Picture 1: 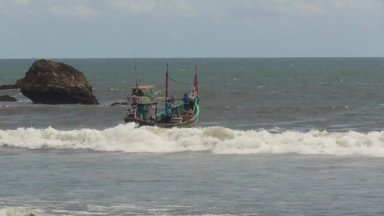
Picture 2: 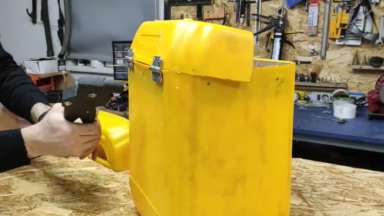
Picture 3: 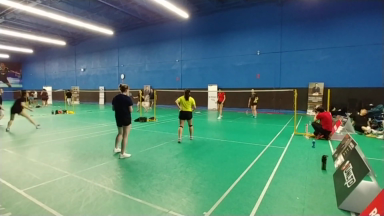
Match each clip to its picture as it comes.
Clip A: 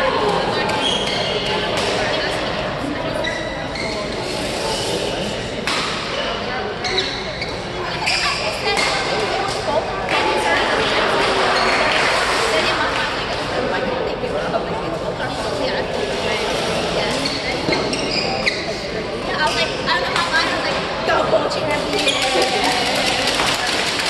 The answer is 3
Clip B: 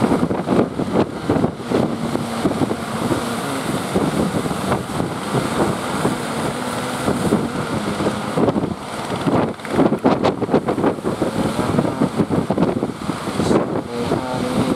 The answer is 1